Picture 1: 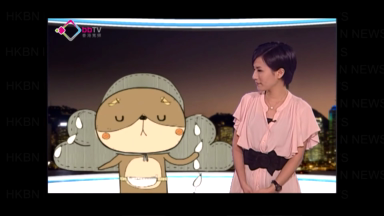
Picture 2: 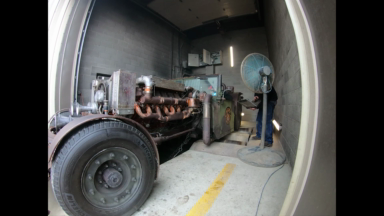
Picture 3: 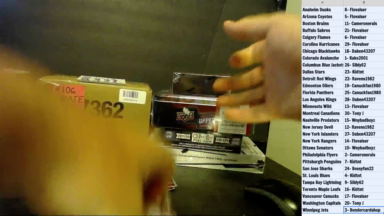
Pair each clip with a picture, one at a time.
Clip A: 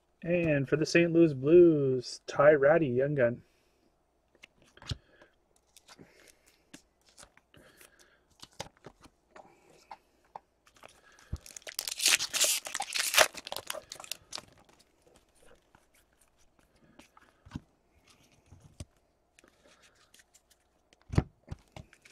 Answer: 3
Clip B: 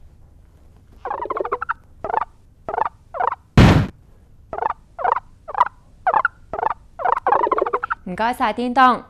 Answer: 1